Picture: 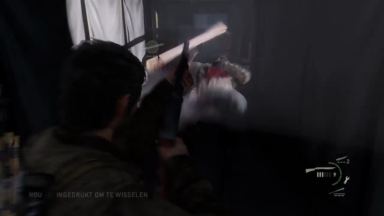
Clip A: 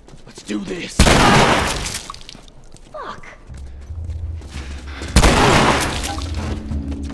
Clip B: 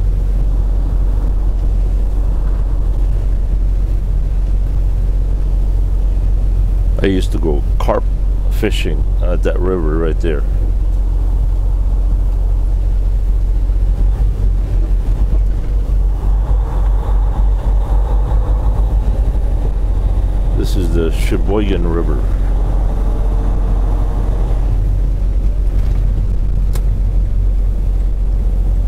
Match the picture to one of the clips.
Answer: A